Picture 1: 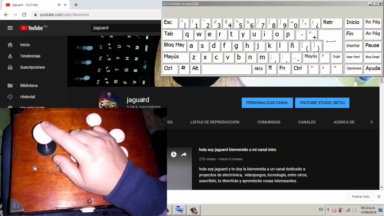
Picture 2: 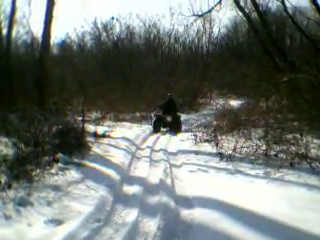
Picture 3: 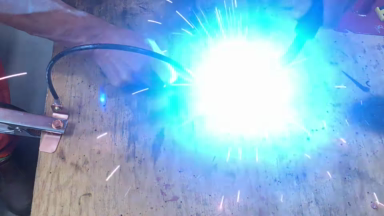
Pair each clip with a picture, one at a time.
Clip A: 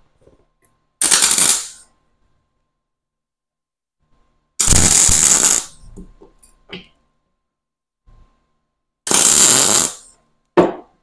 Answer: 3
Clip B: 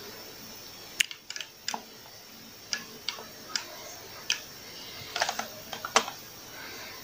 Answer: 1